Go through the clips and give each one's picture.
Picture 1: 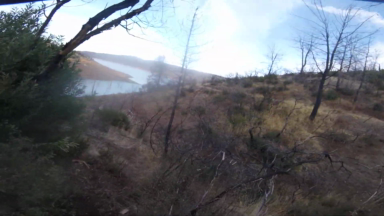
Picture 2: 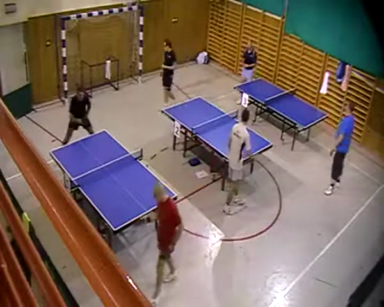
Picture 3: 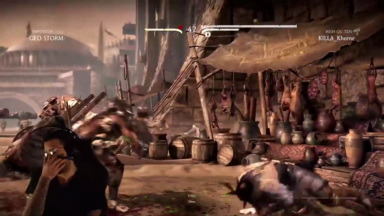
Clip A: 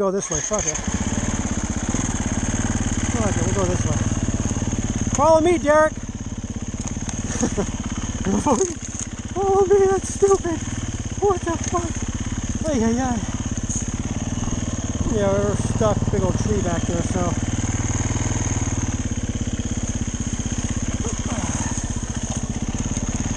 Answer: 1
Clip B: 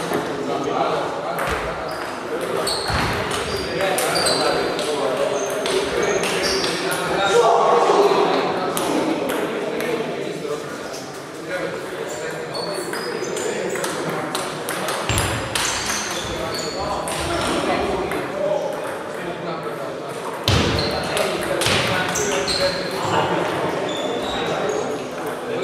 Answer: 2